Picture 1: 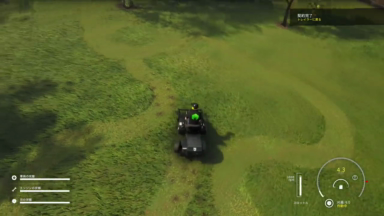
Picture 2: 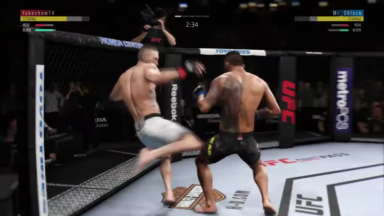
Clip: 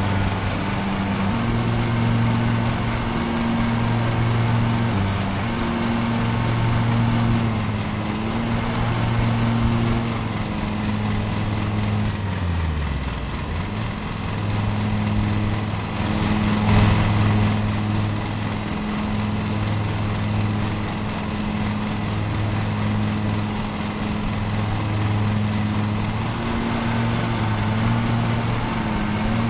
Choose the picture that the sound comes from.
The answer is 1